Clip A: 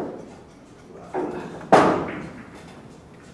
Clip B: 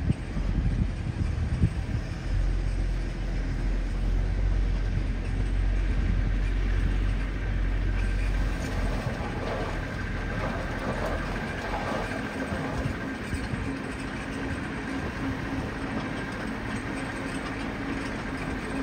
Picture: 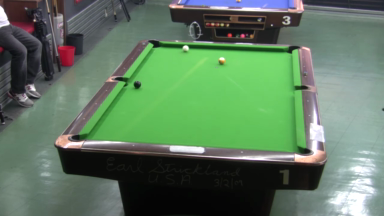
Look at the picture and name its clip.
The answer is A